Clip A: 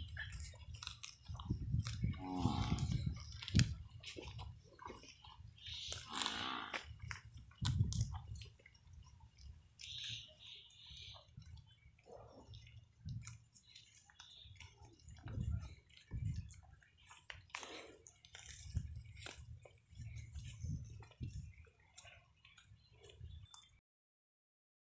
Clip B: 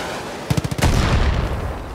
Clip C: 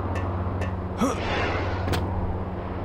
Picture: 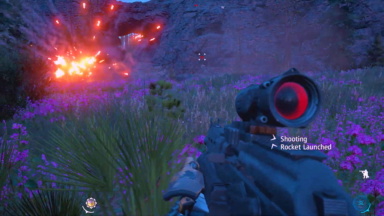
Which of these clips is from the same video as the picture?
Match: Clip B